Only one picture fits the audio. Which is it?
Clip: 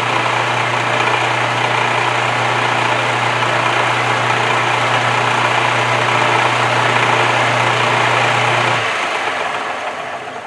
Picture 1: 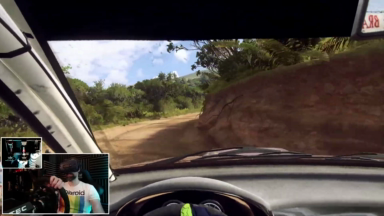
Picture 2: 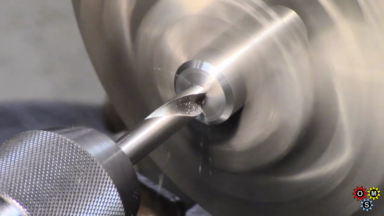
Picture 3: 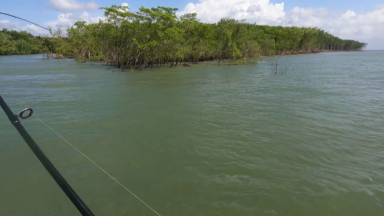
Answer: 2